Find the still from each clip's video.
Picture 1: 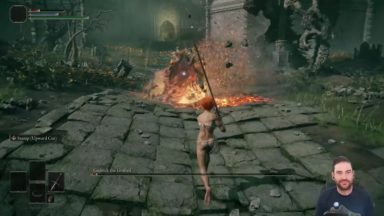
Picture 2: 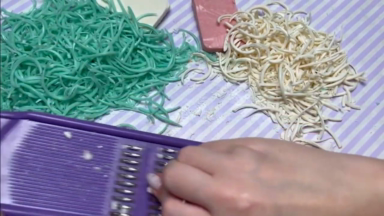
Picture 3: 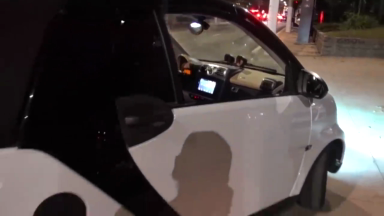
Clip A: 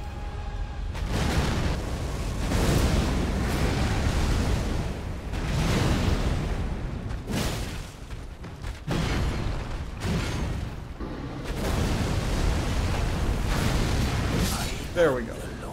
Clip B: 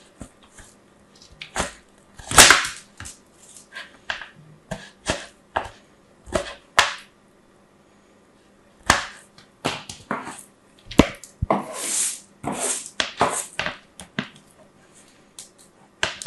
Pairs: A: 1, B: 2